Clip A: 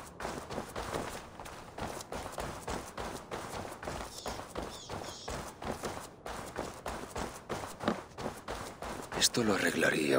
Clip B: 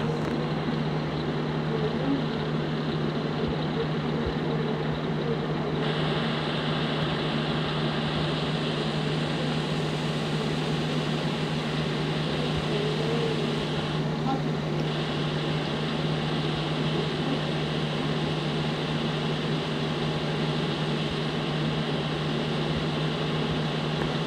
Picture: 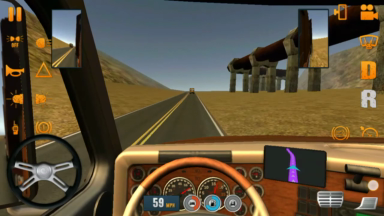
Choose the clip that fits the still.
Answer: B